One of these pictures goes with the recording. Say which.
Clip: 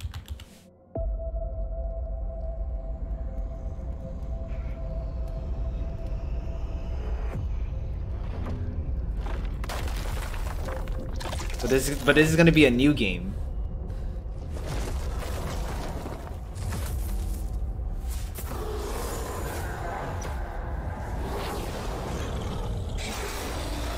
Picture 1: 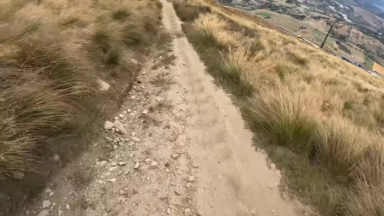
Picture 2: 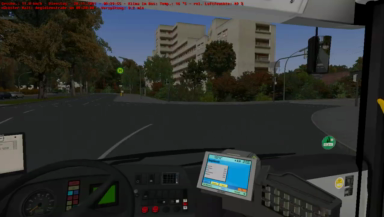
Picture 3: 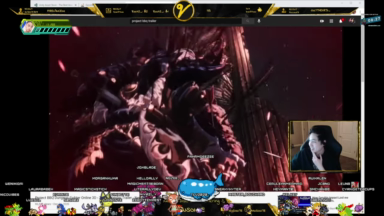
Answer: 3